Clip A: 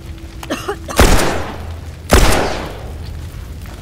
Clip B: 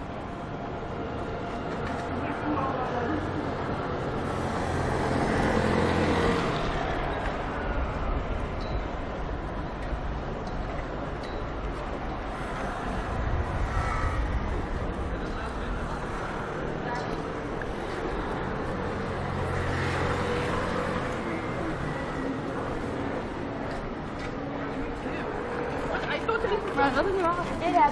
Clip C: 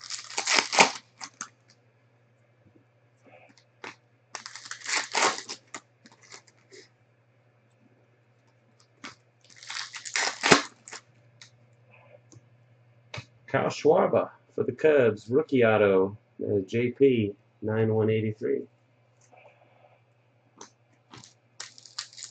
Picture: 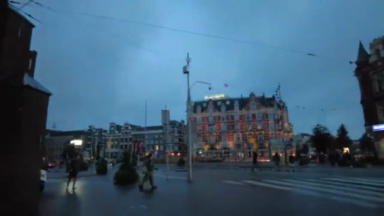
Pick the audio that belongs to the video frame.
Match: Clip B